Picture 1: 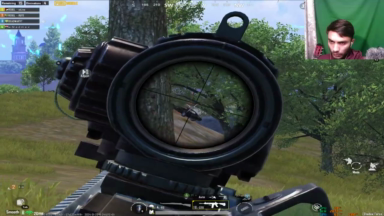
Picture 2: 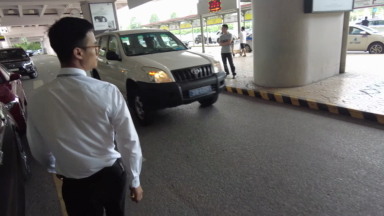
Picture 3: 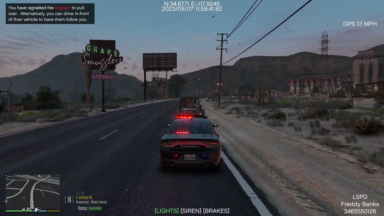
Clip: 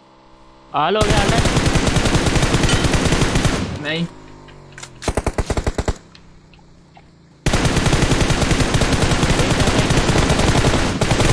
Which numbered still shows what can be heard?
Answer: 1